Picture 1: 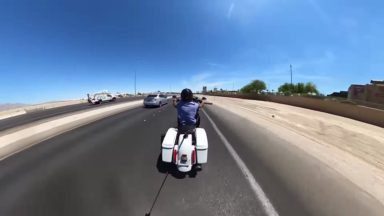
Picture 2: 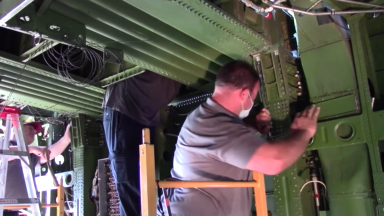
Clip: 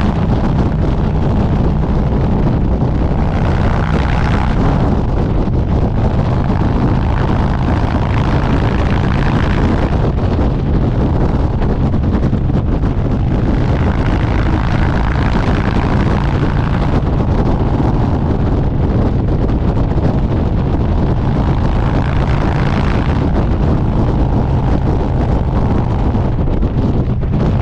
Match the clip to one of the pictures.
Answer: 1